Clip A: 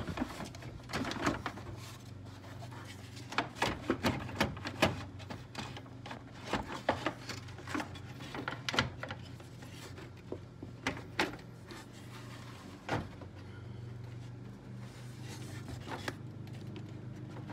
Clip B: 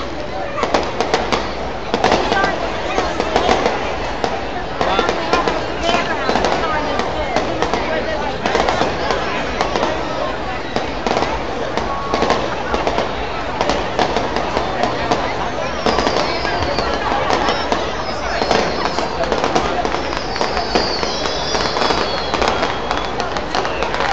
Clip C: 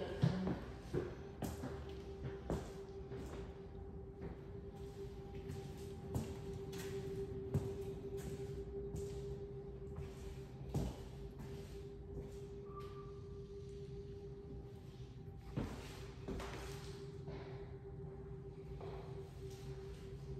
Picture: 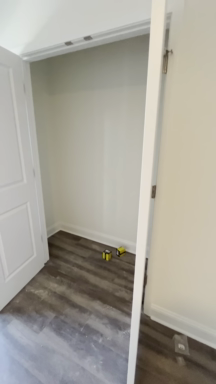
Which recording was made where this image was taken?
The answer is C